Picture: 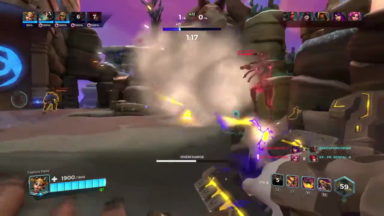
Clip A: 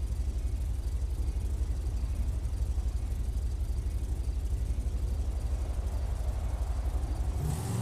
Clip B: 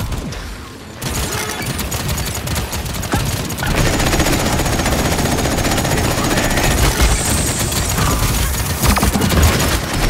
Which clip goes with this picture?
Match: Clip B